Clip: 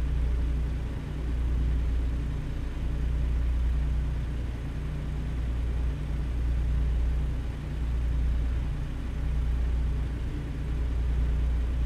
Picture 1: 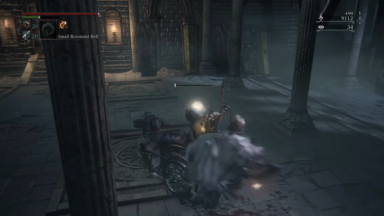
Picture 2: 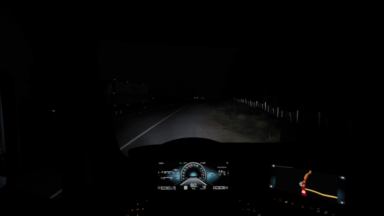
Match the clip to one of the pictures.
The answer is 2